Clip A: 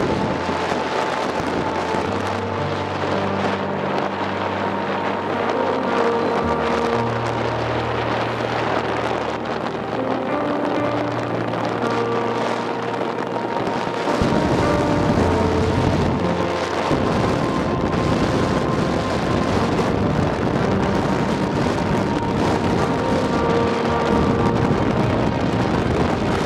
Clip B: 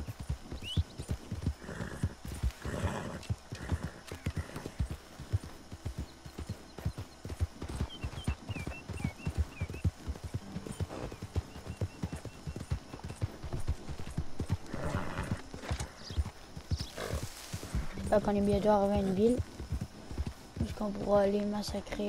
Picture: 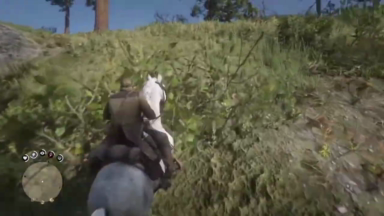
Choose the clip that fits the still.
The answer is B